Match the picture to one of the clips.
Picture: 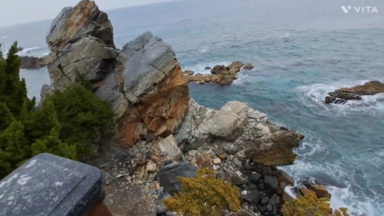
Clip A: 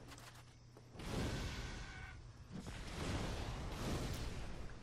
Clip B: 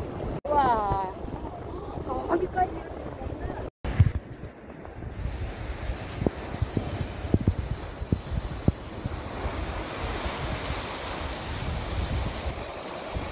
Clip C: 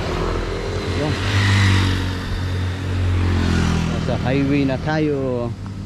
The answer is B